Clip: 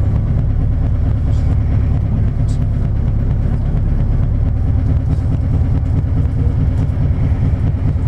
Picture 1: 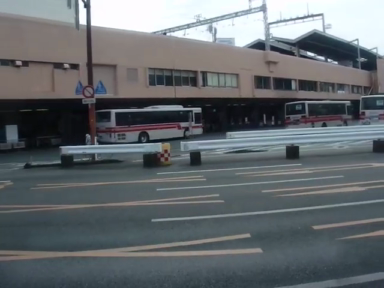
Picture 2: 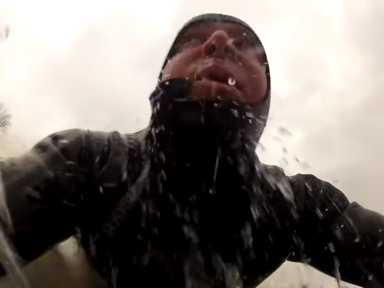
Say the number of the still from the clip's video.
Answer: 1